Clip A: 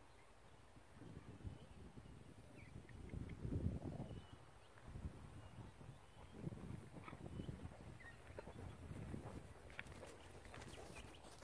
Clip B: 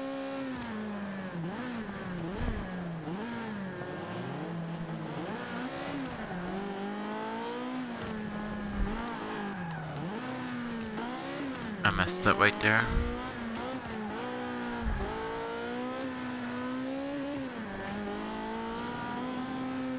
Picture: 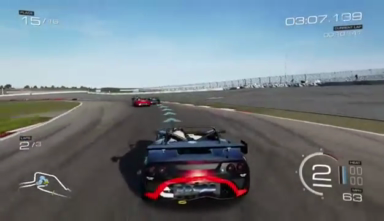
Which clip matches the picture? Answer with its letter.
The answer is B